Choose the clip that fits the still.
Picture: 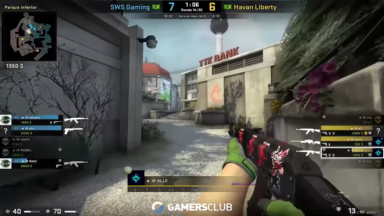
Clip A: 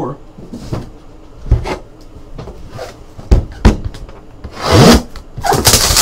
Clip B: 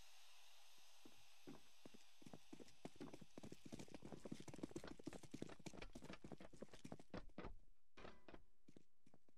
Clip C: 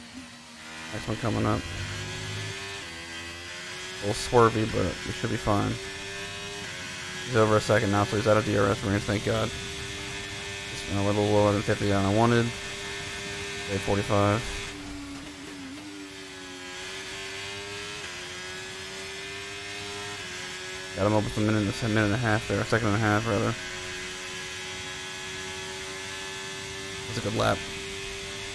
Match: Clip B